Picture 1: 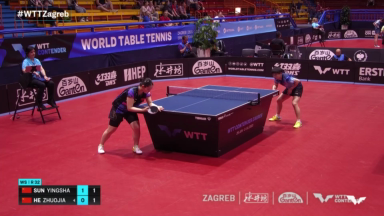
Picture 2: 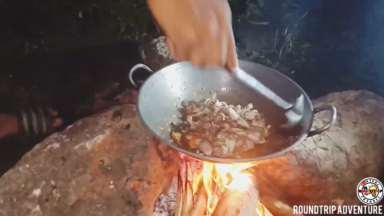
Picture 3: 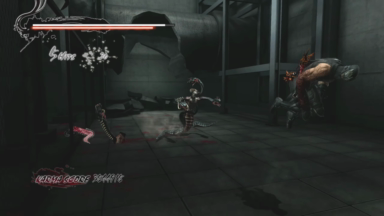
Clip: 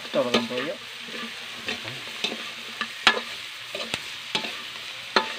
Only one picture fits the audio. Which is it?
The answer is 2